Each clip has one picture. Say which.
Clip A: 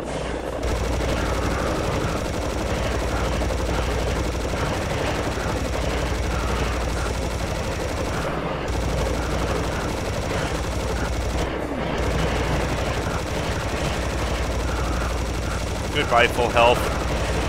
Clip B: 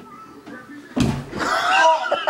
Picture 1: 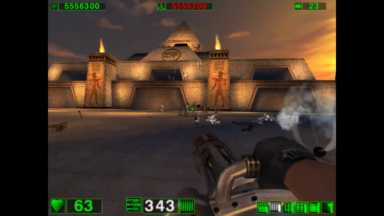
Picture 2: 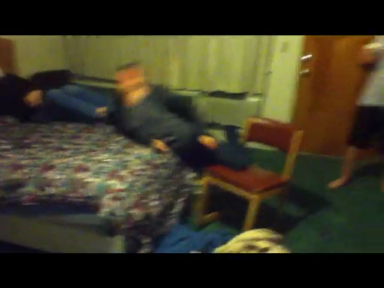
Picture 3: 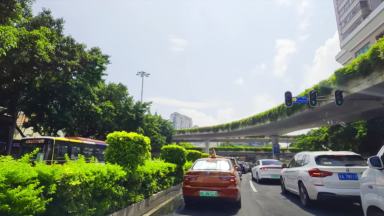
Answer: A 1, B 2